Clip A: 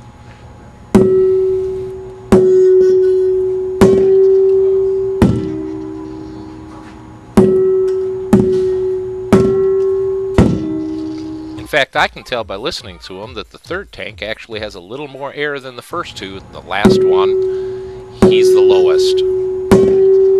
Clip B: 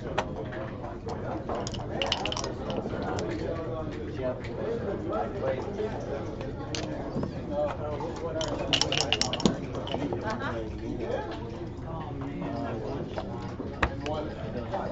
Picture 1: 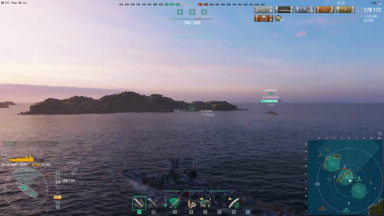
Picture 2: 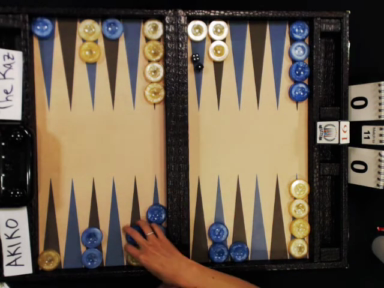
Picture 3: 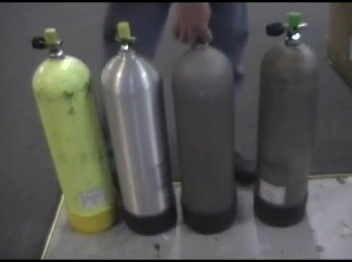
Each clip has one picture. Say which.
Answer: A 3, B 2